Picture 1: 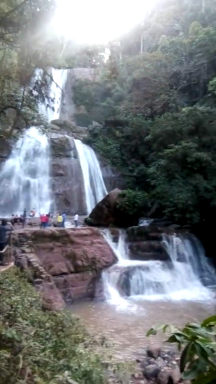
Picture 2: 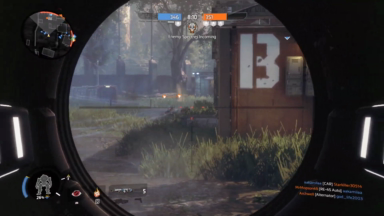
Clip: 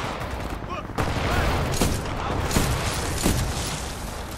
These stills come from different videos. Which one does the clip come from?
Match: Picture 2